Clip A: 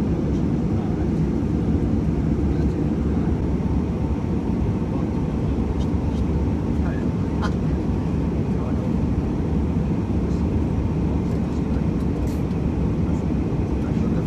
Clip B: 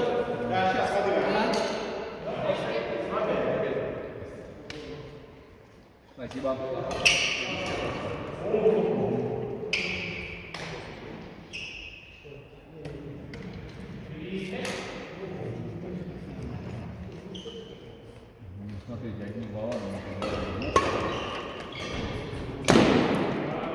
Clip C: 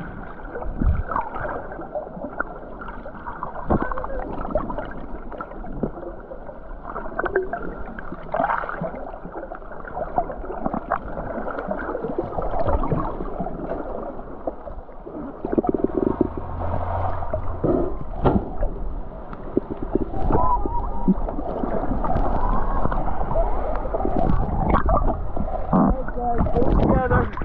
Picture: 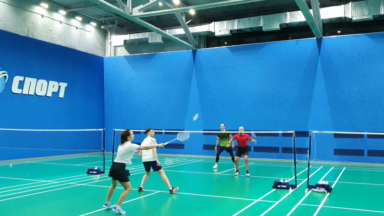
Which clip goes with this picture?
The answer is B